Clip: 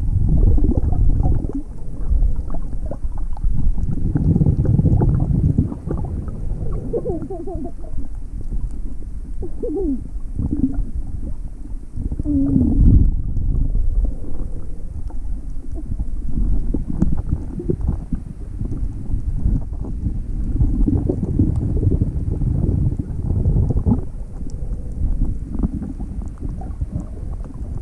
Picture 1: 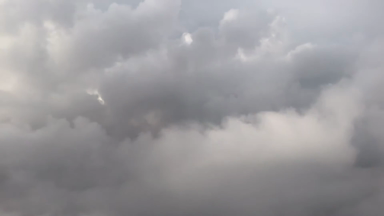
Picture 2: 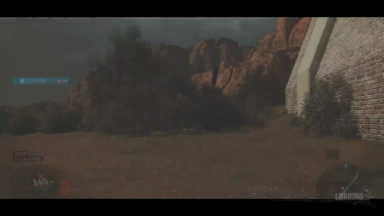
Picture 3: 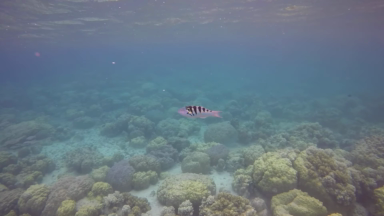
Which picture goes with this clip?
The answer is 3